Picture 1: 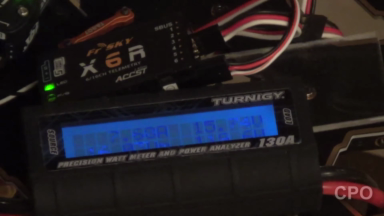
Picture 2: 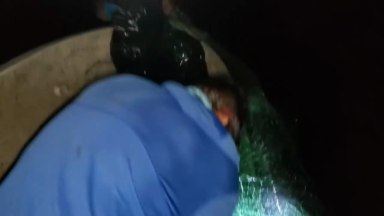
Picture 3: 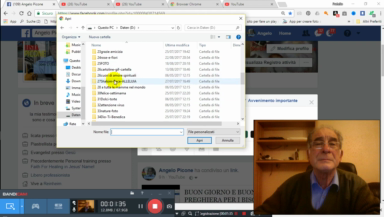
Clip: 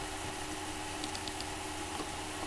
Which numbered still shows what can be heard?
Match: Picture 3